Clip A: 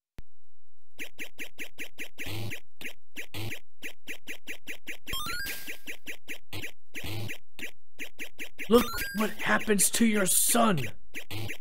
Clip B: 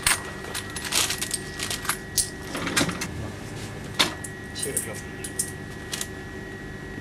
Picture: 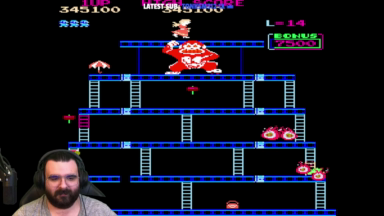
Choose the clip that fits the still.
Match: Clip A